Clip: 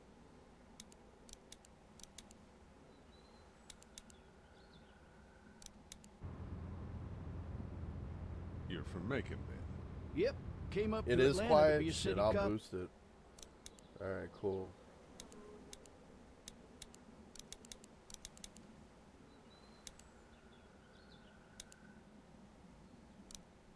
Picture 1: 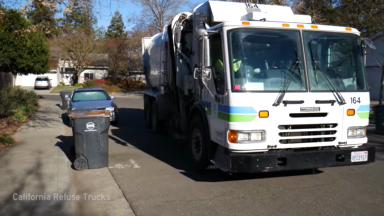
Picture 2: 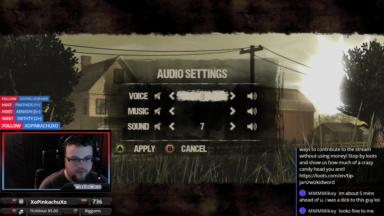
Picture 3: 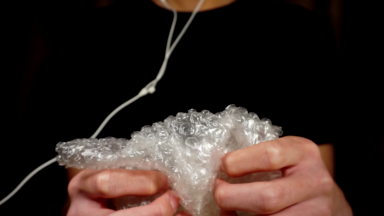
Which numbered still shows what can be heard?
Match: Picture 2